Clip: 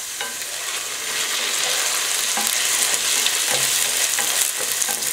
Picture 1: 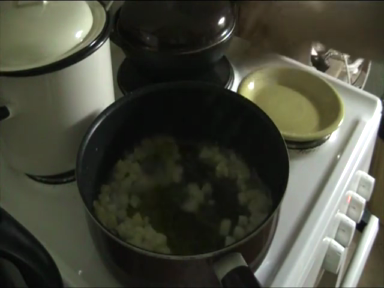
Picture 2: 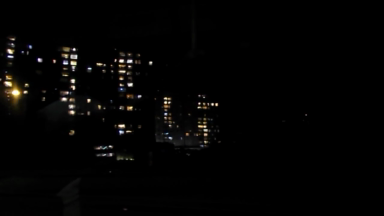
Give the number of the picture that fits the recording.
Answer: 1